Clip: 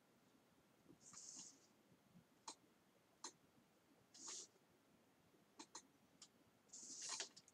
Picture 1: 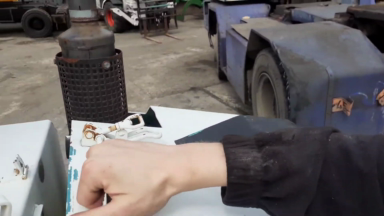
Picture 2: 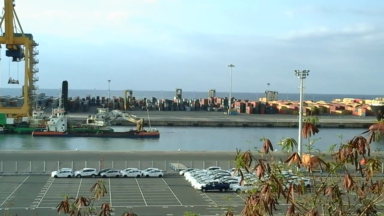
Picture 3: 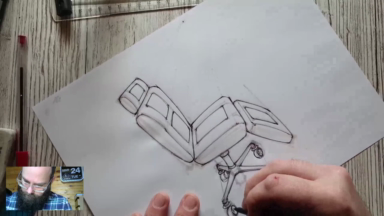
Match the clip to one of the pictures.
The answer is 3